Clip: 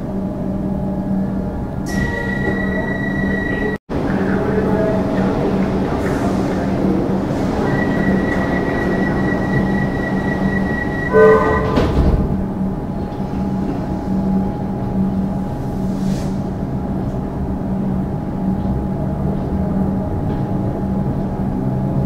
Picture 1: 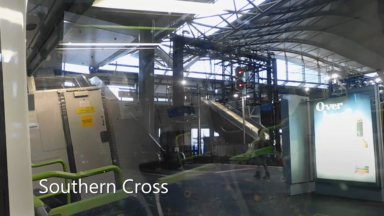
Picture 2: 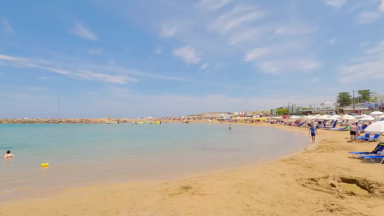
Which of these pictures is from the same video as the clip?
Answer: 1